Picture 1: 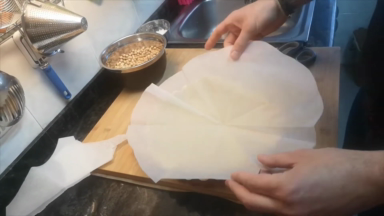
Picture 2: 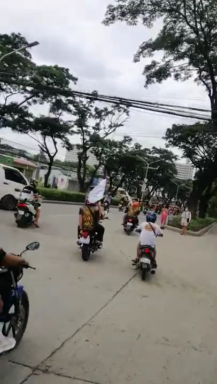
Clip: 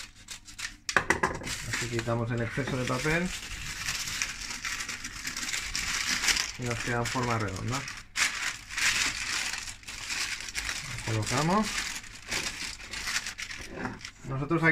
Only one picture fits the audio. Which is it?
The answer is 1